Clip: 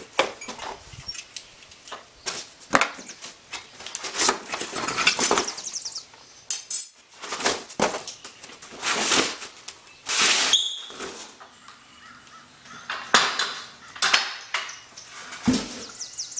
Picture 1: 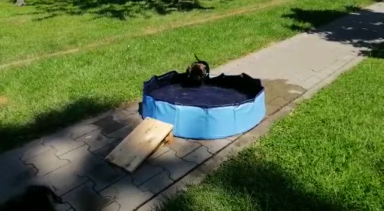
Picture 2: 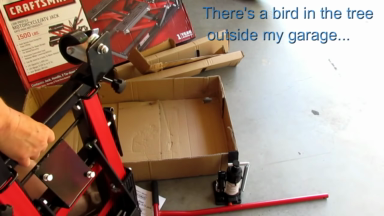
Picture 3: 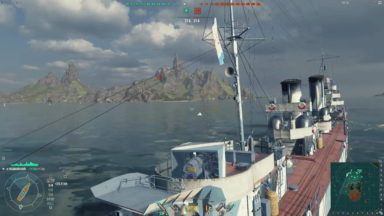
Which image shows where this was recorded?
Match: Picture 2